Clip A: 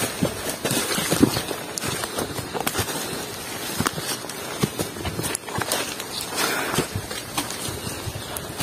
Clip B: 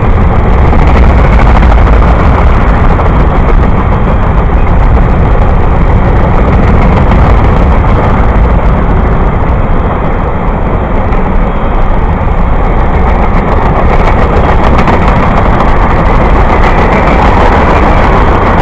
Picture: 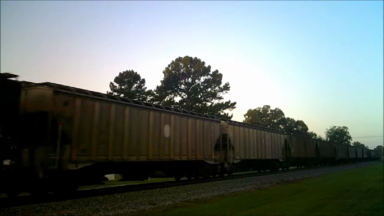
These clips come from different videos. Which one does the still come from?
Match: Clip B